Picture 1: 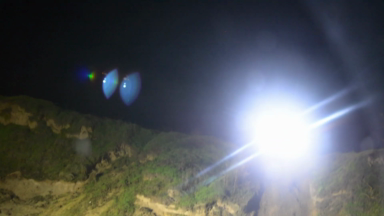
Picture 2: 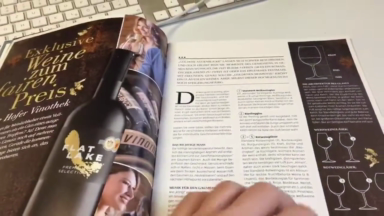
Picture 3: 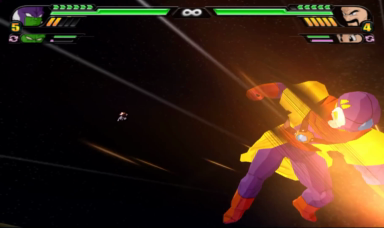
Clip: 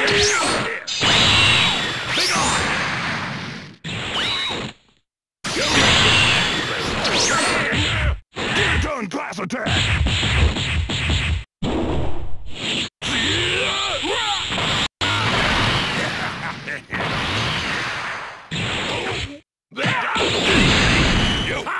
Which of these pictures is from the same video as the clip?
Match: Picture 3